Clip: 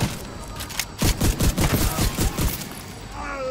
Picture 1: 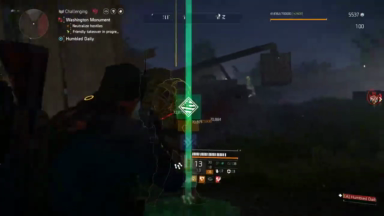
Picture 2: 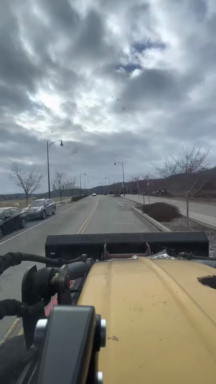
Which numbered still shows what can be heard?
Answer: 1